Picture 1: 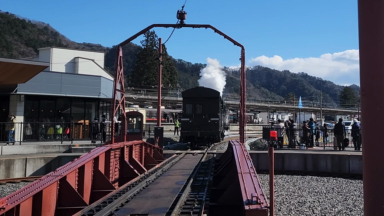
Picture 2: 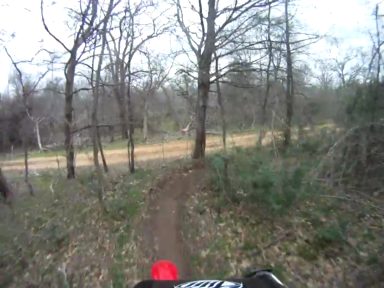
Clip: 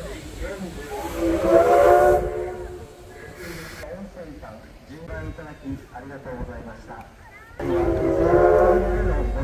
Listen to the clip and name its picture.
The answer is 1